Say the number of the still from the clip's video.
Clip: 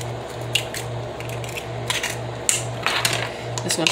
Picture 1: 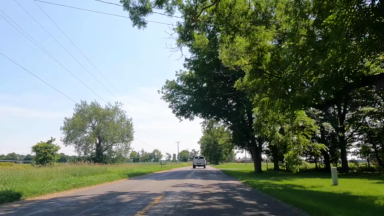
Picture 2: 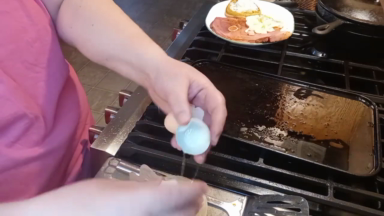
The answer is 2